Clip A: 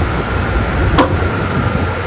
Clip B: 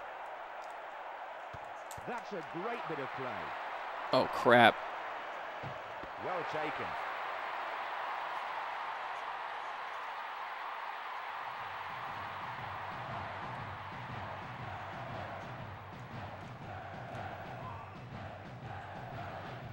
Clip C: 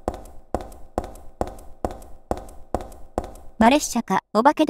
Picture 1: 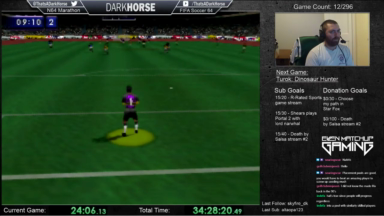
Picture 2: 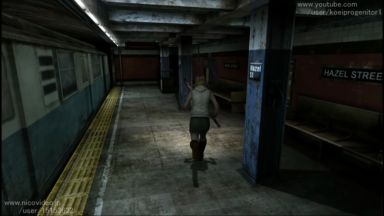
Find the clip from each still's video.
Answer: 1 B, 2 C